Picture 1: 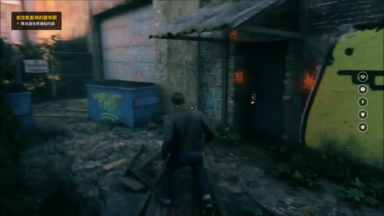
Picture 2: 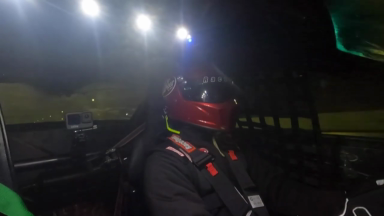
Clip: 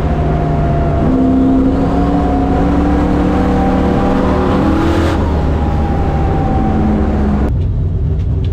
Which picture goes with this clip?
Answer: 2